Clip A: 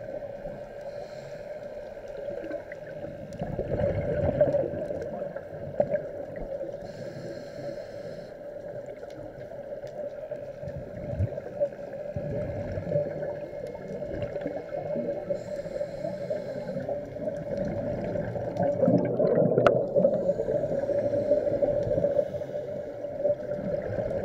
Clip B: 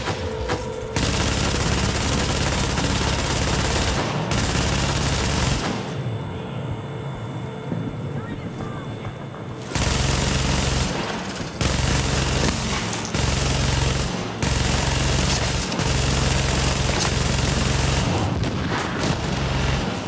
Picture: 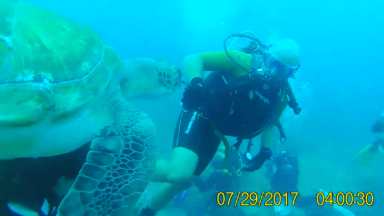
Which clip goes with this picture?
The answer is A